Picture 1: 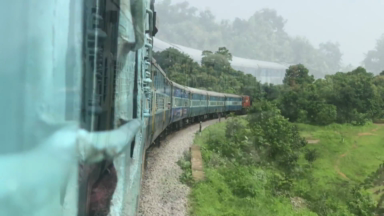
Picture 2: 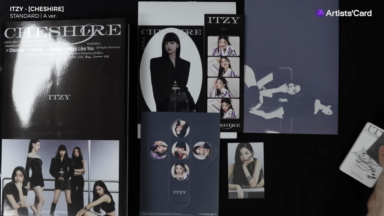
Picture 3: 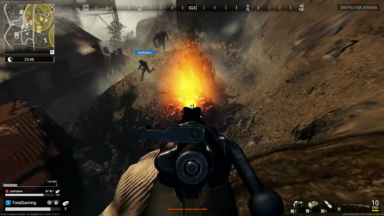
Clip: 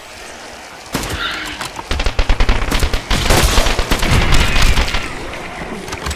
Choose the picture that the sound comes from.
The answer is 3